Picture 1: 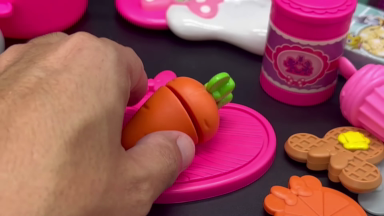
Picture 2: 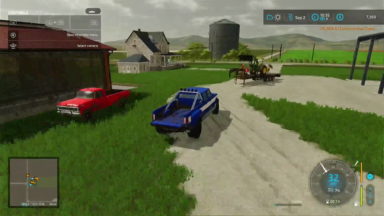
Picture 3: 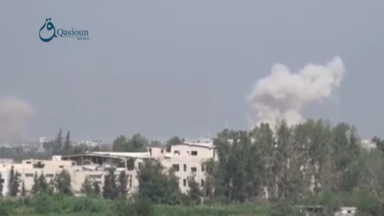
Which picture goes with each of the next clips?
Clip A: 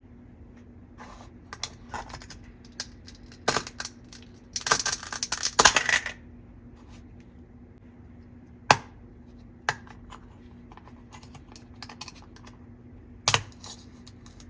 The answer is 1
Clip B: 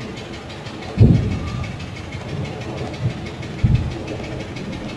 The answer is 3